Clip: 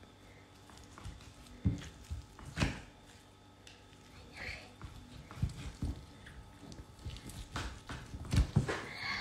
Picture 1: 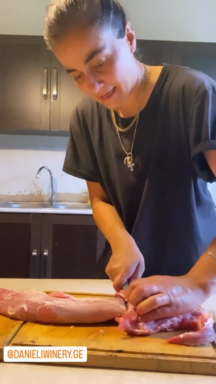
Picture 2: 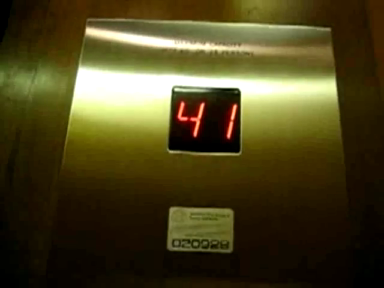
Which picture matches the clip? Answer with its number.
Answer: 1